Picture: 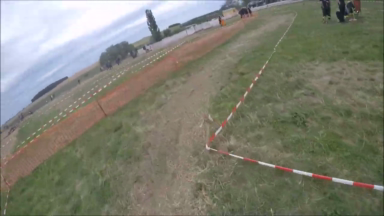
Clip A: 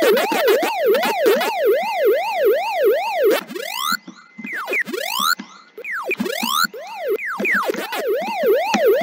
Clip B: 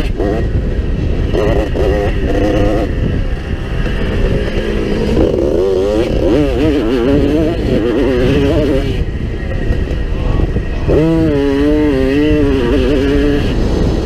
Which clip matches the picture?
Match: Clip B